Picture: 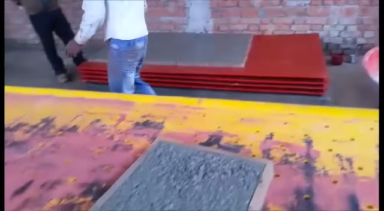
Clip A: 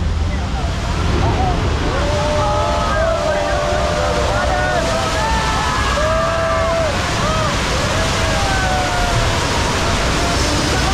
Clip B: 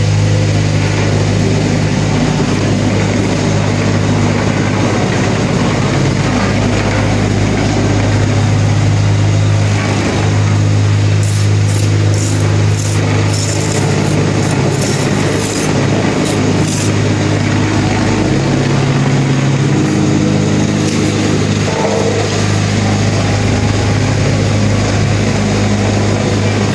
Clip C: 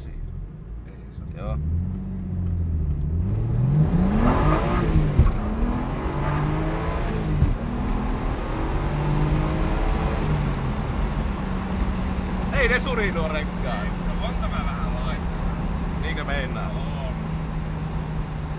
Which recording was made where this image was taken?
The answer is B